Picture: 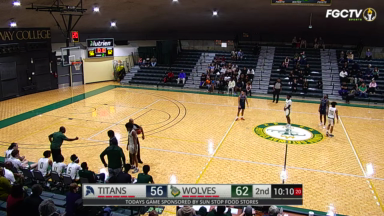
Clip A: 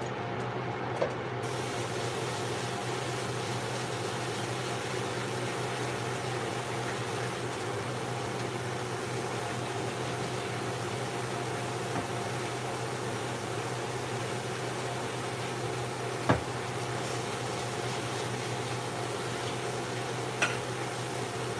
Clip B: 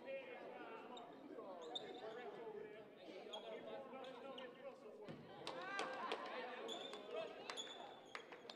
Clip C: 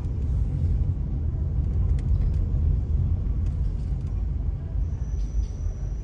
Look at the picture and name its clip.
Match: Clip B